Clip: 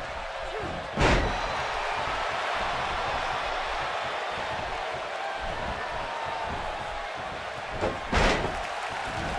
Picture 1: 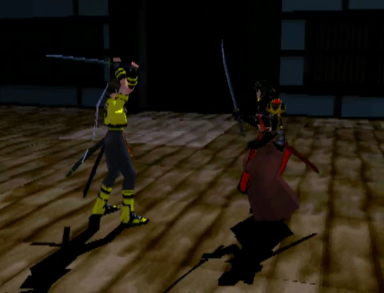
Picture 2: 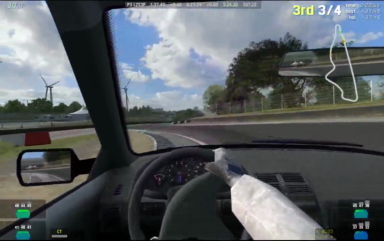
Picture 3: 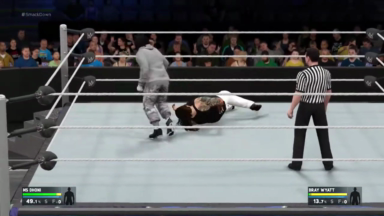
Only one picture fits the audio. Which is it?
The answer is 3